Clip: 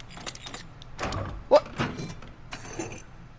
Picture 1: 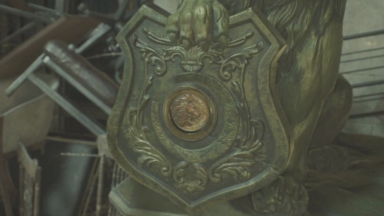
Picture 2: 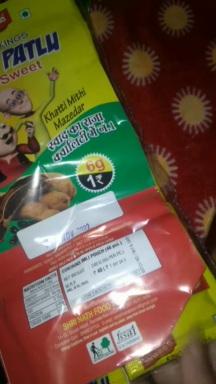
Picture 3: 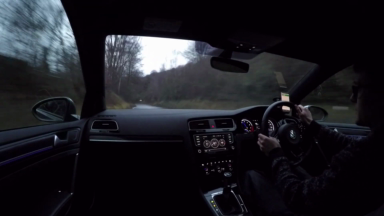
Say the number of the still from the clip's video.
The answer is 1